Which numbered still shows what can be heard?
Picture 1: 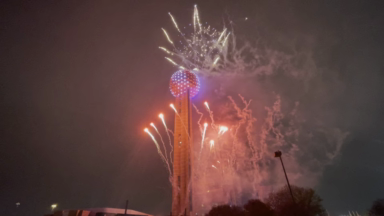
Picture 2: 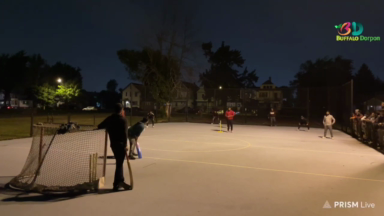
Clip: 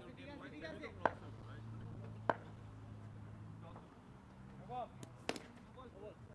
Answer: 2